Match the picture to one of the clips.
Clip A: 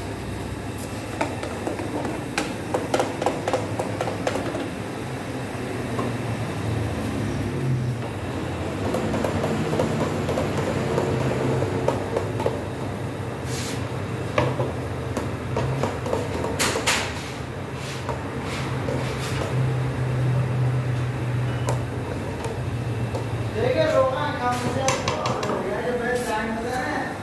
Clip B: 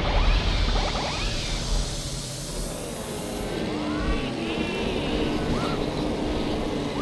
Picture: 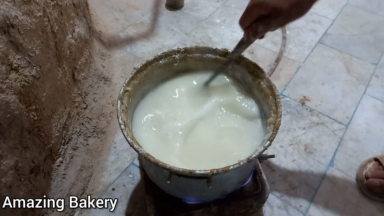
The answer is A